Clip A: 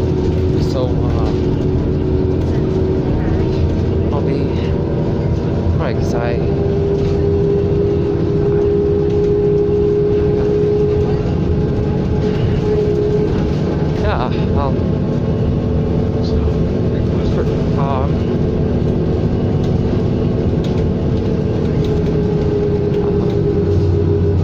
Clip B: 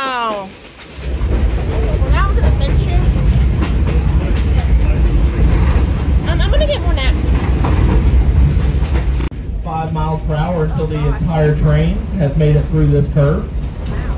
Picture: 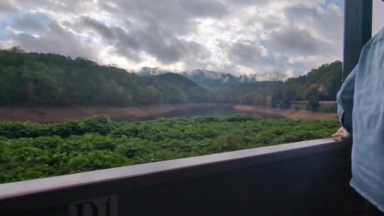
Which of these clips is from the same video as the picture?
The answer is B